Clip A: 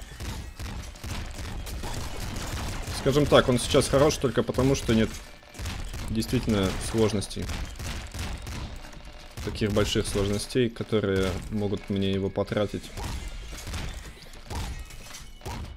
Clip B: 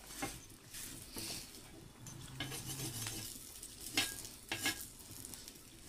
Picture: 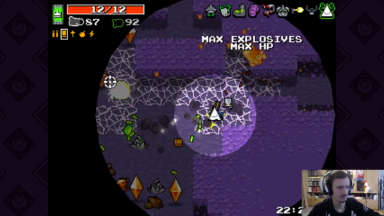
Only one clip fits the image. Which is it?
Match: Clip A